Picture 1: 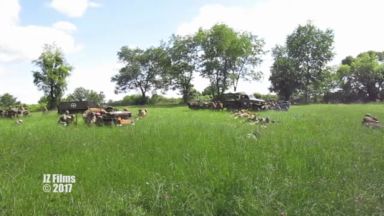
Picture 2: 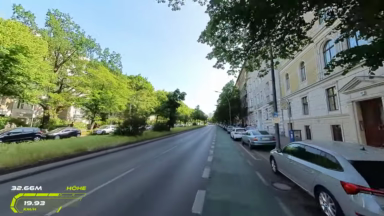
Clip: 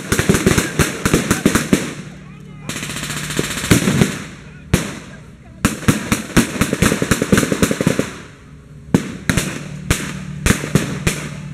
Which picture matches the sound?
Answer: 1